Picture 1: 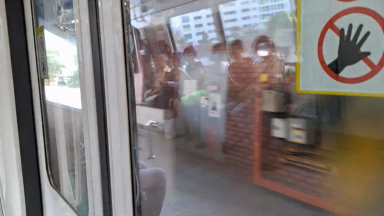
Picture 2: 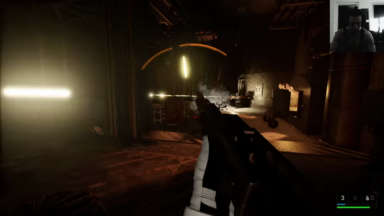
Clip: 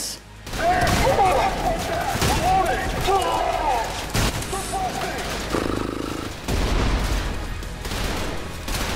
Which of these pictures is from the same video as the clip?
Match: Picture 2